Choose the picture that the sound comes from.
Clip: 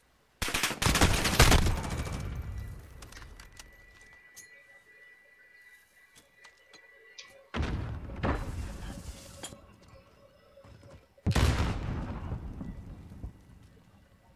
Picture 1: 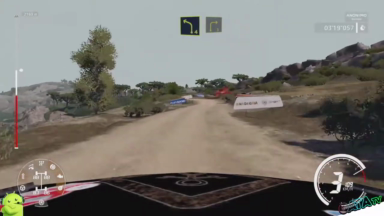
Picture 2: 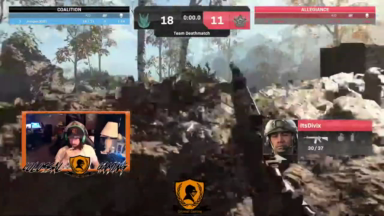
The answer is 2